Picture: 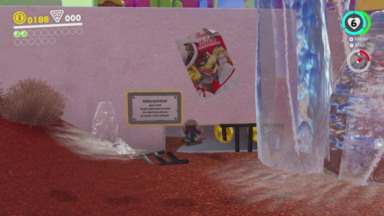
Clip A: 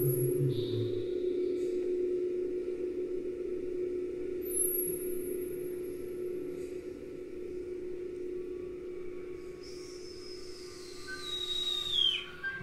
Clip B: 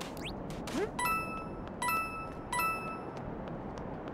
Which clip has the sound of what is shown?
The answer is B